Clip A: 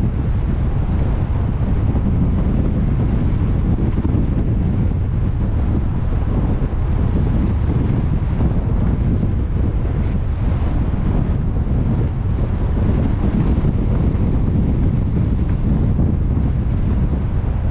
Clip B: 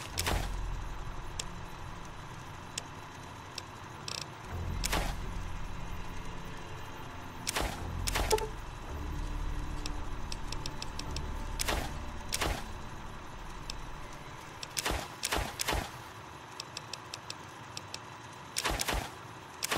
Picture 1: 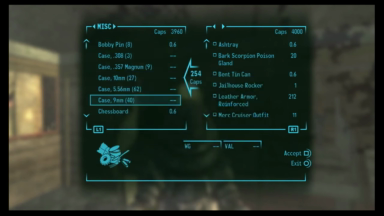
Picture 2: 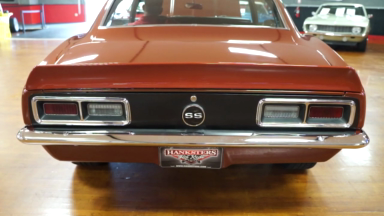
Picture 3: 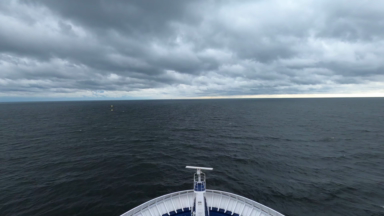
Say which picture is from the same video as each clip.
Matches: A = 3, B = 1